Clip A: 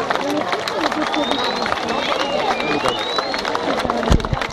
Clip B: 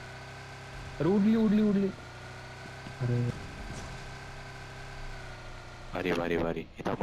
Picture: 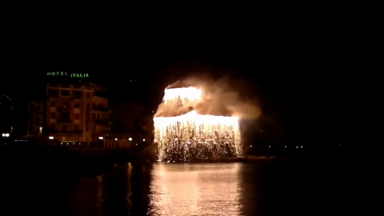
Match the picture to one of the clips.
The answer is A